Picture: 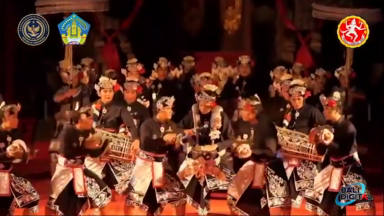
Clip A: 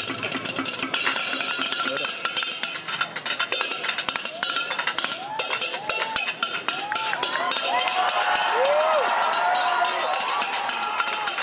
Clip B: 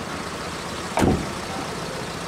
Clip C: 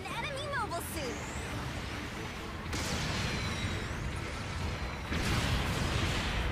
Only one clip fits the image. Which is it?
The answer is A